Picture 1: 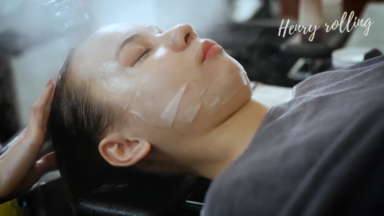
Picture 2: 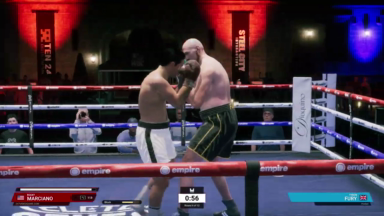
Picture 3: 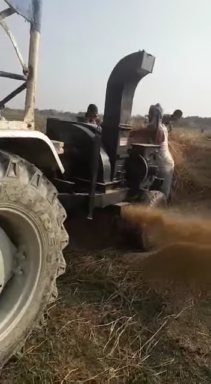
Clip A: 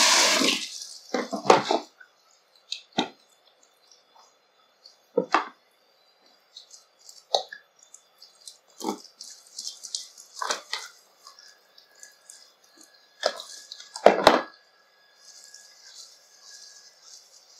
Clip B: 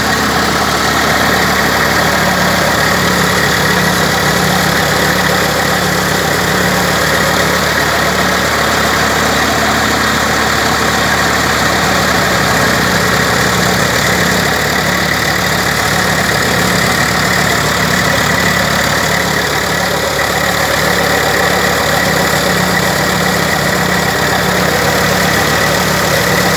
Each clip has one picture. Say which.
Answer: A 1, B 3